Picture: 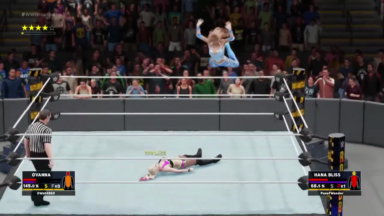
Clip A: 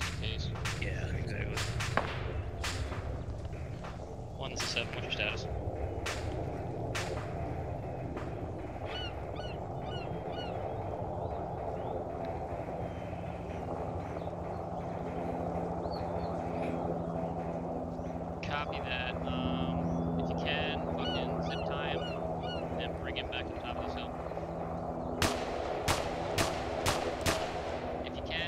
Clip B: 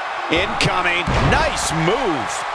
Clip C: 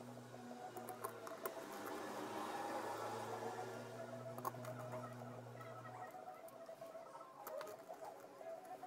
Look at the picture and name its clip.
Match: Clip B